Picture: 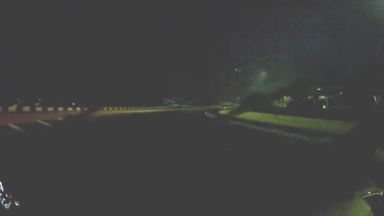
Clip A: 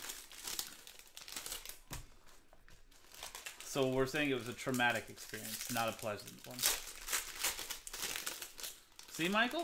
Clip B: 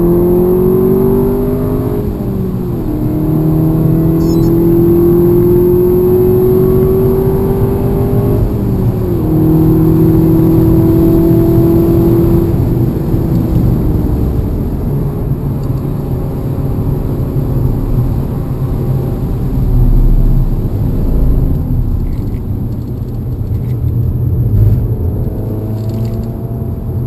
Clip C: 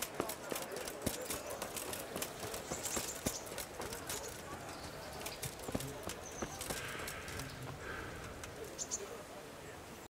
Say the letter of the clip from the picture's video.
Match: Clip B